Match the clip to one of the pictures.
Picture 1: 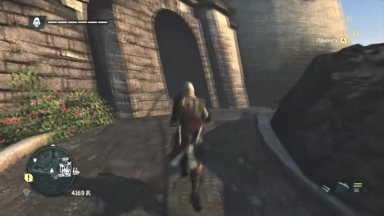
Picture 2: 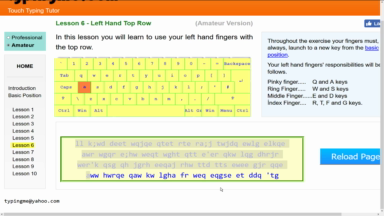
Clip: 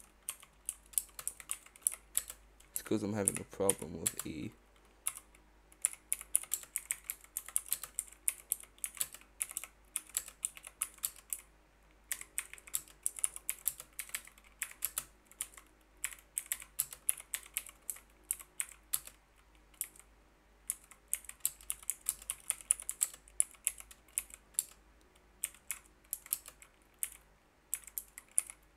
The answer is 2